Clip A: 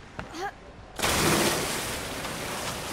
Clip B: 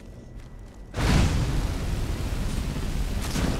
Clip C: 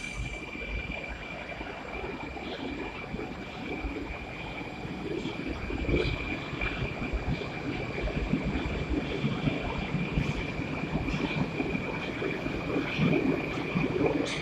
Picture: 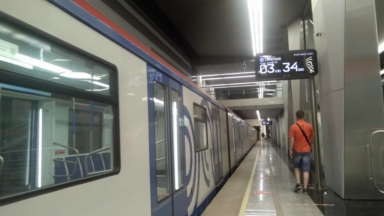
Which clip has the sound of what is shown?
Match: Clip C